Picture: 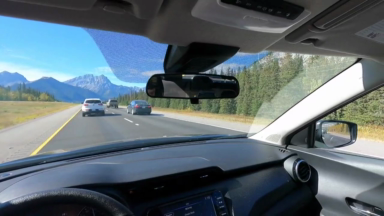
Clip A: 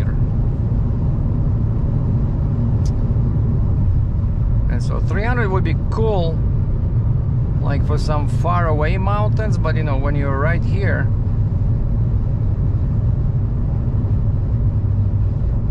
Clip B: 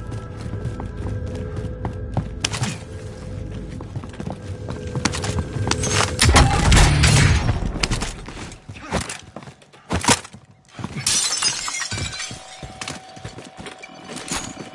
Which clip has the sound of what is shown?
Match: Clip A